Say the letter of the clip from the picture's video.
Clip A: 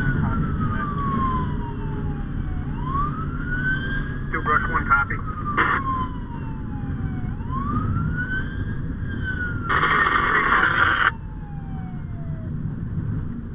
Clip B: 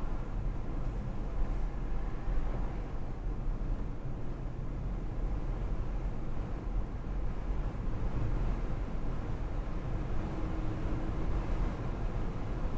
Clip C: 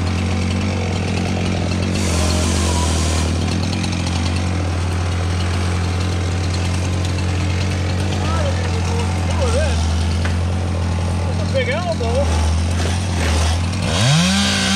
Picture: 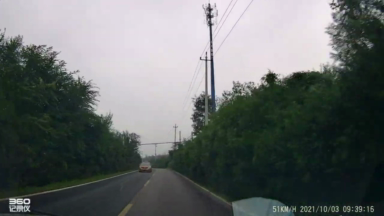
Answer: B